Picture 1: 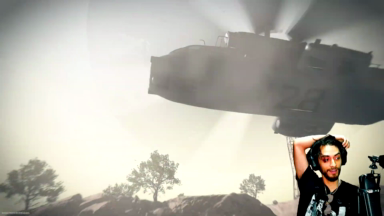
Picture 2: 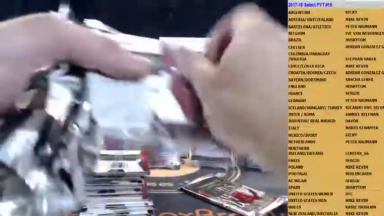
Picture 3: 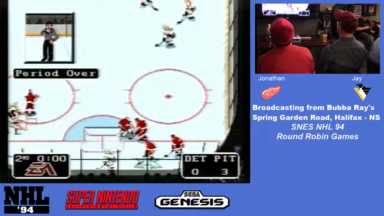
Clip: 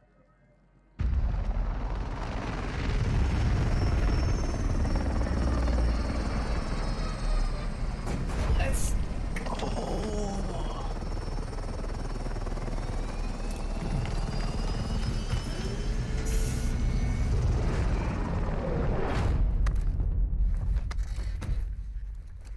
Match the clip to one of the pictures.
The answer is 1